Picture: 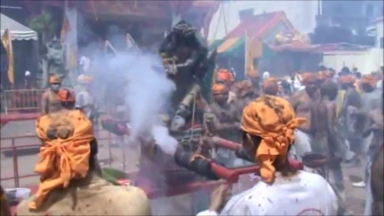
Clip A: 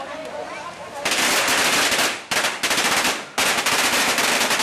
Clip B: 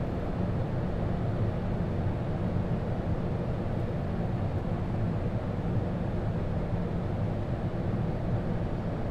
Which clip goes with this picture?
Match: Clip A